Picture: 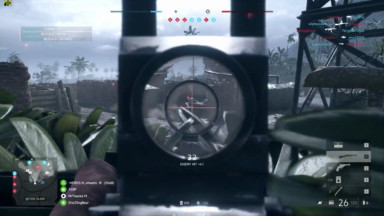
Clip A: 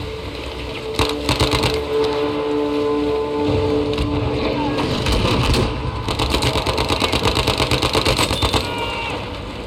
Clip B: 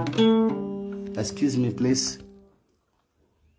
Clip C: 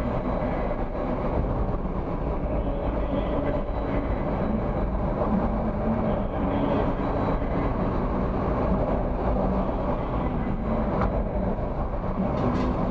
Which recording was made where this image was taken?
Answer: A